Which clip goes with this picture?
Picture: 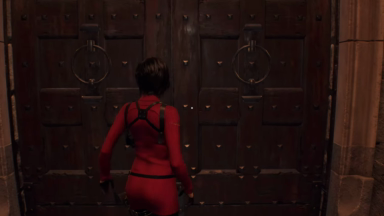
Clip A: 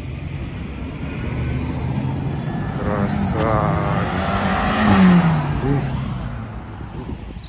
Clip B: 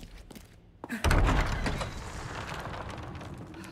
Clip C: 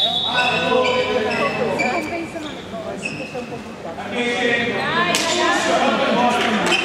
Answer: B